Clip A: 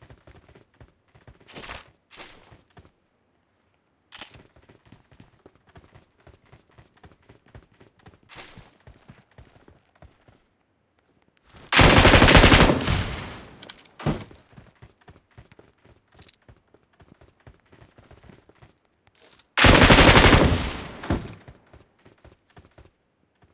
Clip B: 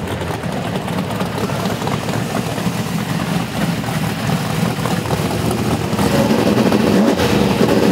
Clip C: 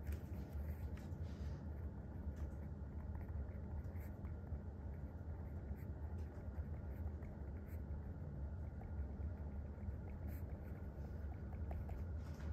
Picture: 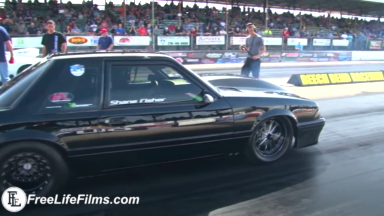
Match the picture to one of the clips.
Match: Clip B